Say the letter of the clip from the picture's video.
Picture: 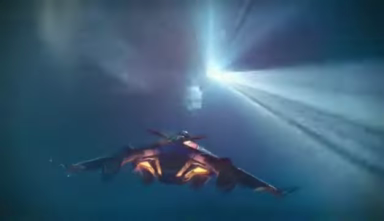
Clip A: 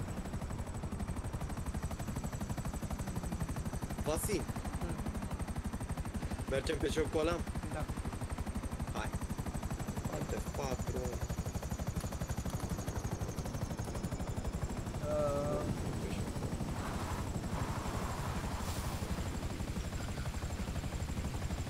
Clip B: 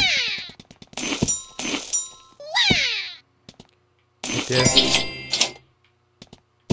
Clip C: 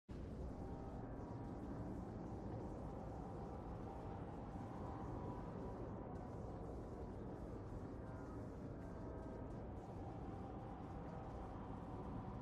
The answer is C